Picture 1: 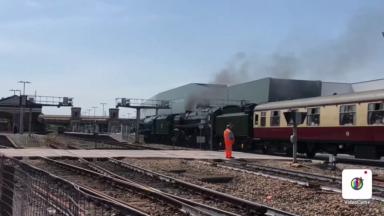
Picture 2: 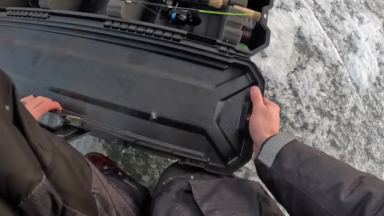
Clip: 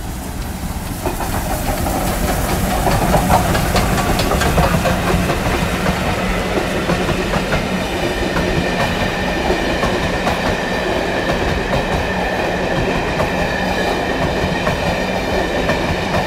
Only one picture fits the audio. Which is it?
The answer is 1